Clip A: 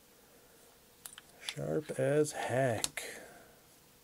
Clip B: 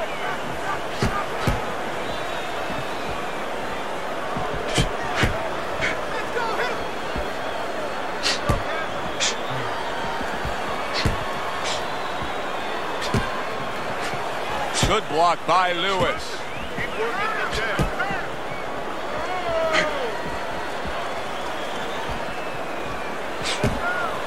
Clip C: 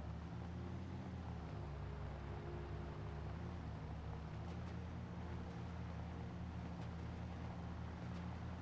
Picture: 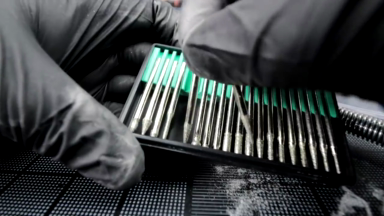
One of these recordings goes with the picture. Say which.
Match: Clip A